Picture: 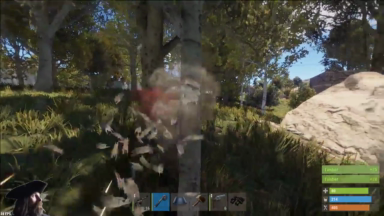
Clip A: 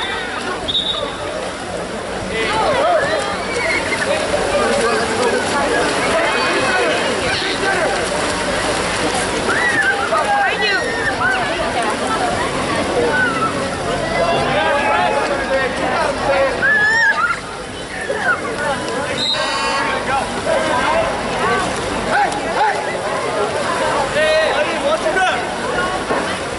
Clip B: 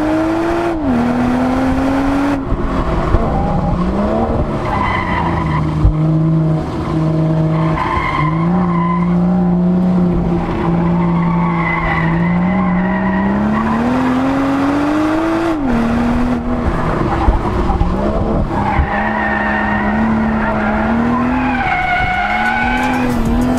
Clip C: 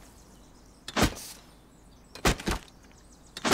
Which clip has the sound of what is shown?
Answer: C